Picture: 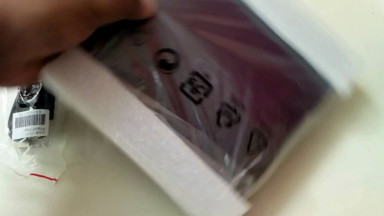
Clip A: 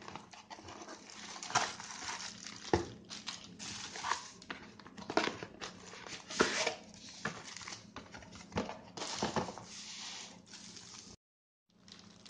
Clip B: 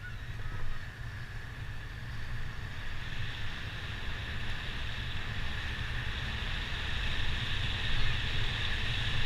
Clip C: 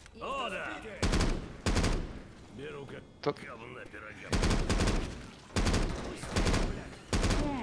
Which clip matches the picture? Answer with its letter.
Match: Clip A